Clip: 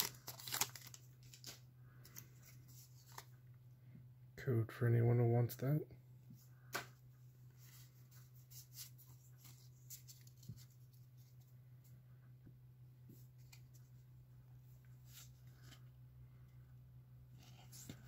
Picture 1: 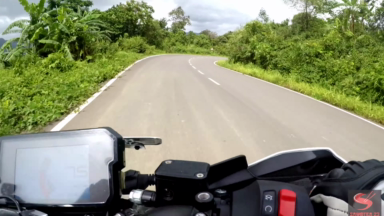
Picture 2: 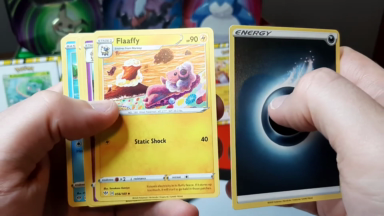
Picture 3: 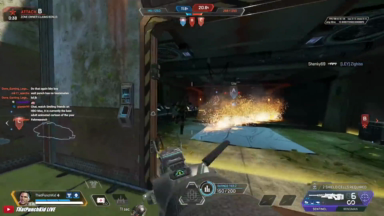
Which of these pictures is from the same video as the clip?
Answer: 2